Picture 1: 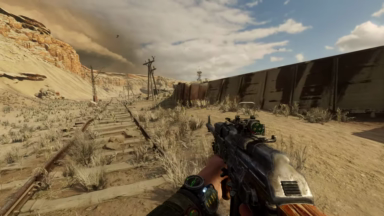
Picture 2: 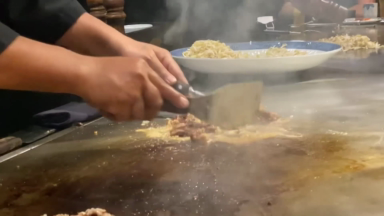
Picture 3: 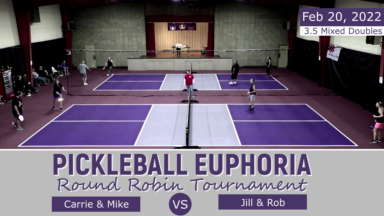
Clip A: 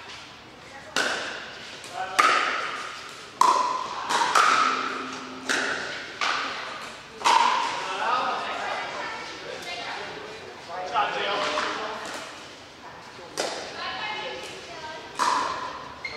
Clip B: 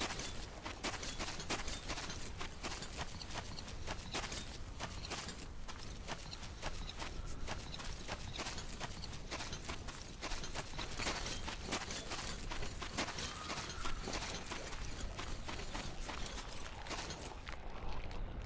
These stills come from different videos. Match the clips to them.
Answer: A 3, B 1